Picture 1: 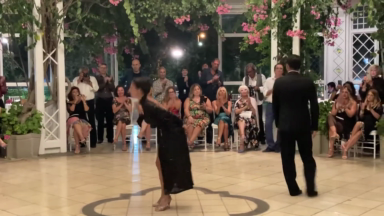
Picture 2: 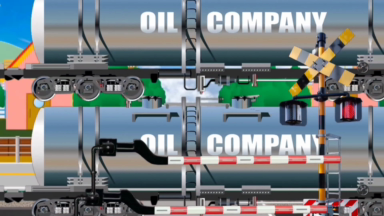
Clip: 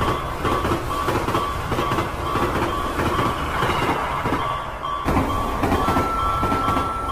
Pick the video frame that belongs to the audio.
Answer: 2